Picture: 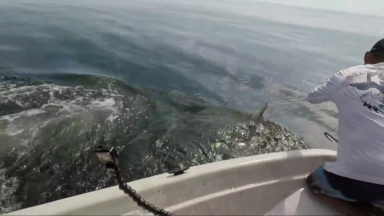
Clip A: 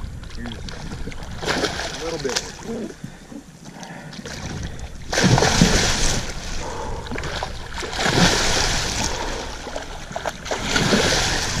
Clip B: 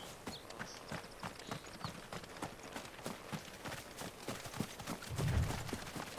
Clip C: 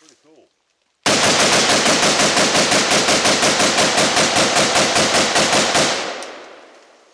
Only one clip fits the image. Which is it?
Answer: A